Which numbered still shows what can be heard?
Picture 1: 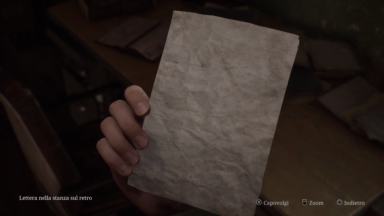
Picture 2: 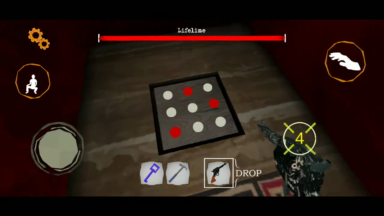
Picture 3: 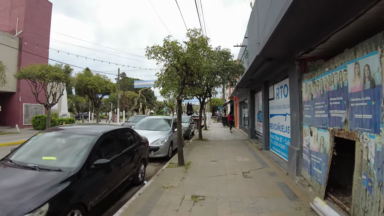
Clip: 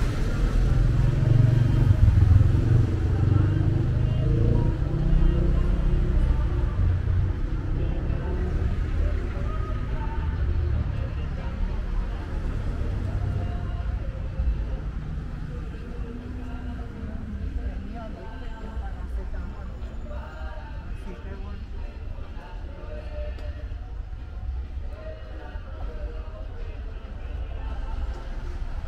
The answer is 3